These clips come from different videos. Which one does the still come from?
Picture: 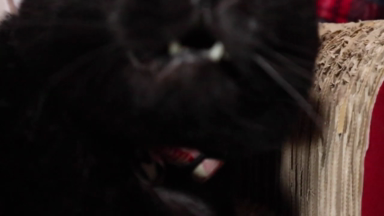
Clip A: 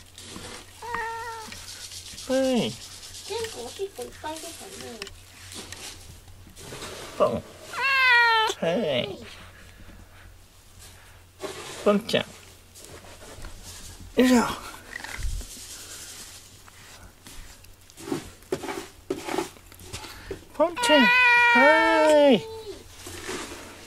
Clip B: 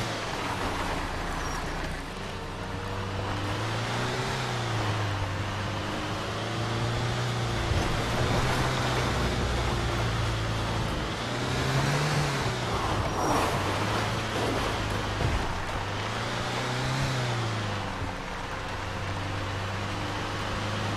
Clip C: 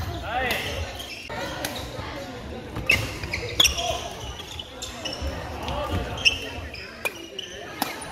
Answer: A